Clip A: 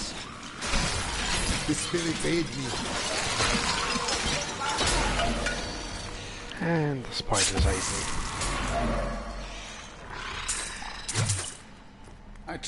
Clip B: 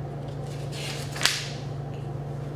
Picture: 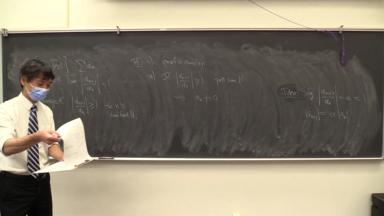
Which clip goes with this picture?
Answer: B